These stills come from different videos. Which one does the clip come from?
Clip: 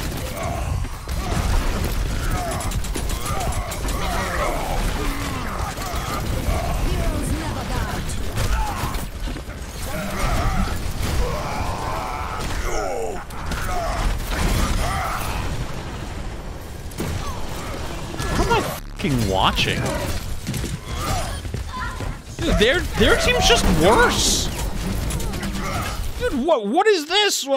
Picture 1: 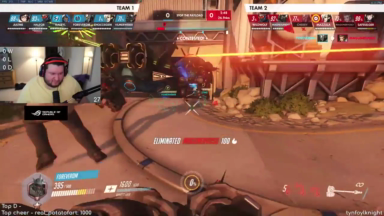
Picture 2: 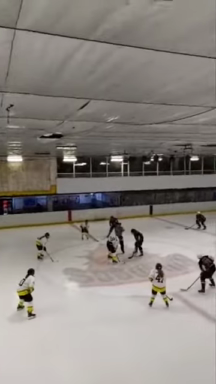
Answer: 1